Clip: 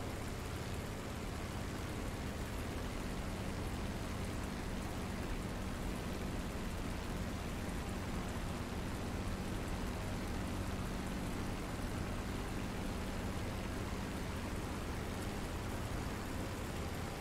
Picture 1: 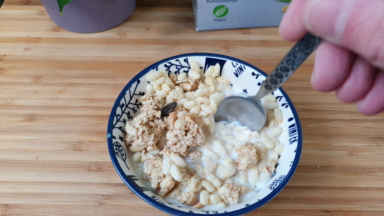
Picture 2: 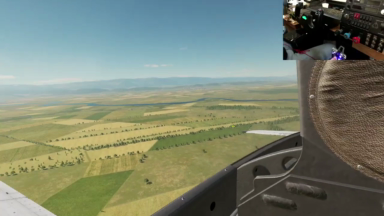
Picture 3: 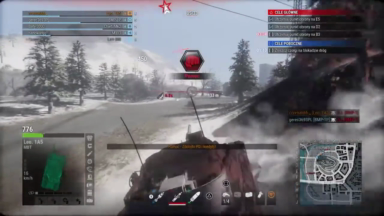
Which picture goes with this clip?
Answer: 2